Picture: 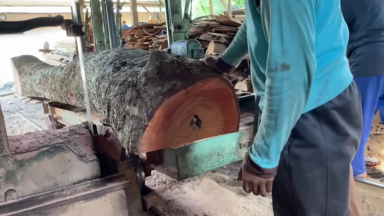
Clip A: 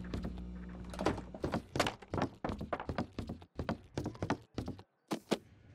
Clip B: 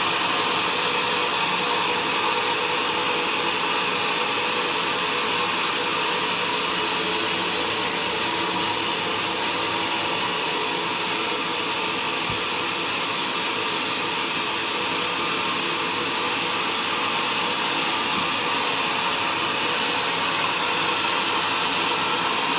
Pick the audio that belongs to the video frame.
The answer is B